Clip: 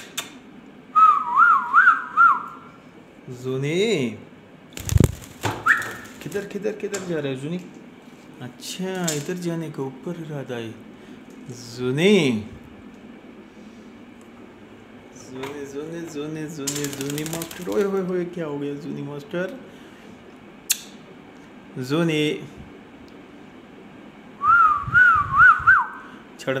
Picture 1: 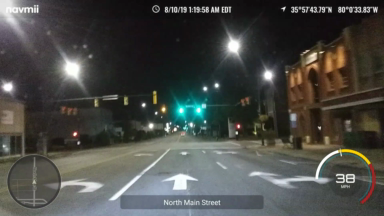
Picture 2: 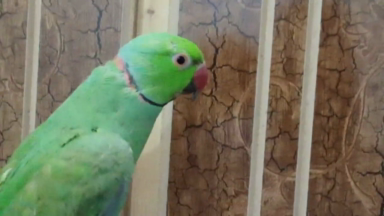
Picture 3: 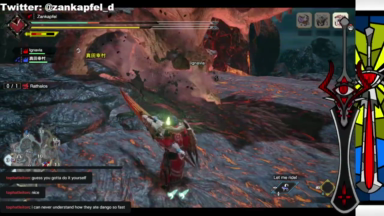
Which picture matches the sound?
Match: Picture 2